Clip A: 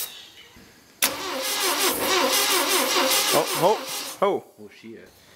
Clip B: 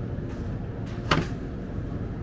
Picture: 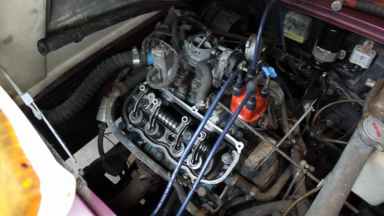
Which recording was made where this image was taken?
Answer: A